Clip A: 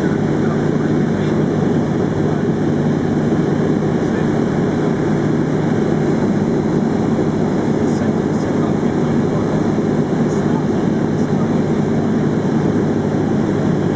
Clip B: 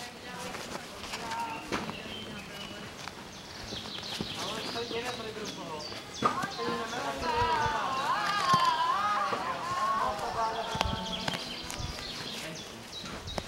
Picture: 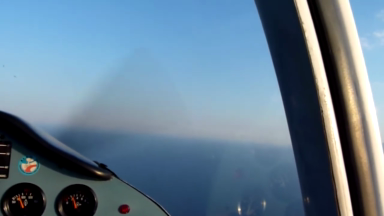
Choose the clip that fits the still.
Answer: A